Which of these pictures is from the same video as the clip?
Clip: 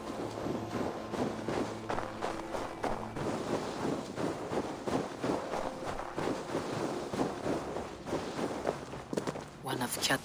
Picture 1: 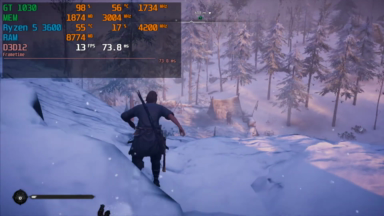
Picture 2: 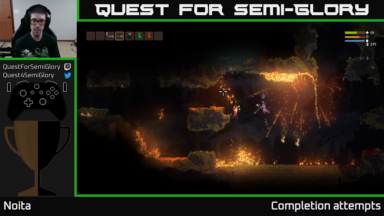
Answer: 1